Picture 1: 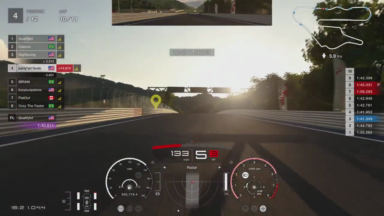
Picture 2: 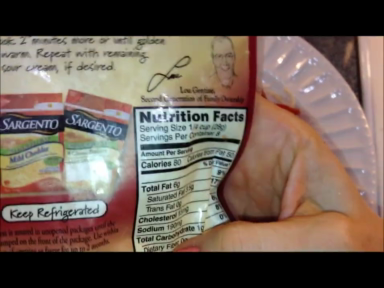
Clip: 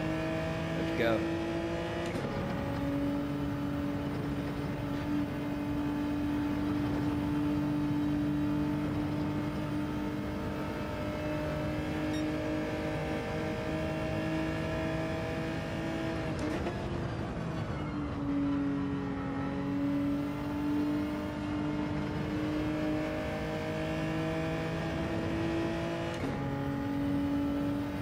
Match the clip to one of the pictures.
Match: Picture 1